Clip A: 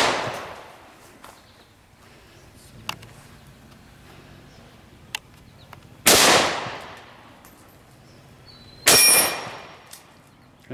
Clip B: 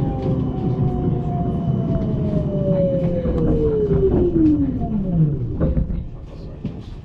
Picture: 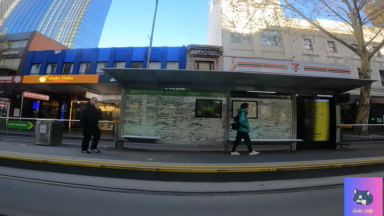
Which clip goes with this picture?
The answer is B